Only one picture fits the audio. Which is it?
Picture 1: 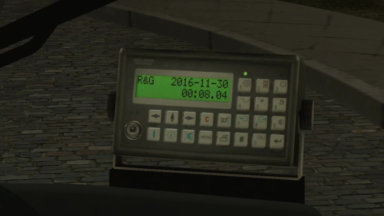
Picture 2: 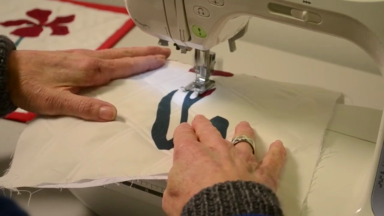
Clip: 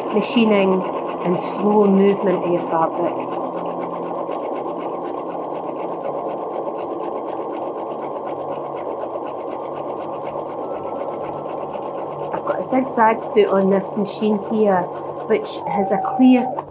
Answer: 2